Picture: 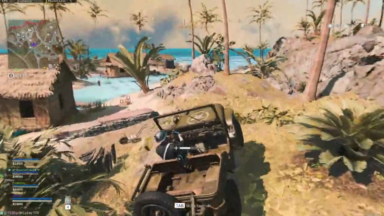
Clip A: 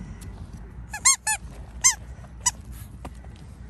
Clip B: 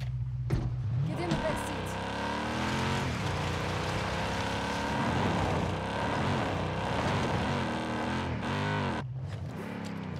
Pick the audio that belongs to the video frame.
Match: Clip B